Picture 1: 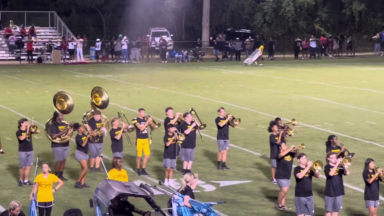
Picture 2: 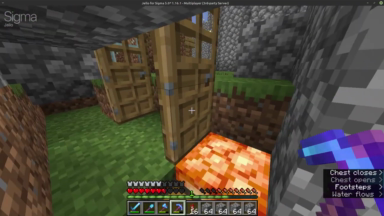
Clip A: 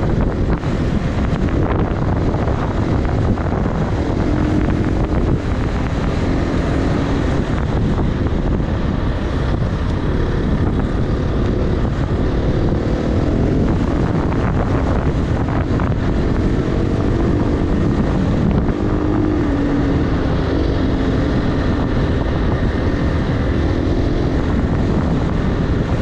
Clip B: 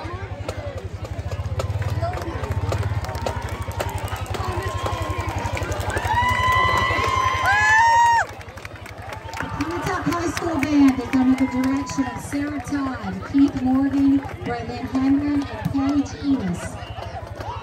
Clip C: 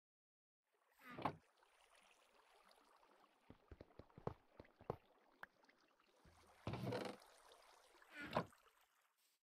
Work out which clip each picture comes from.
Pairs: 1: B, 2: C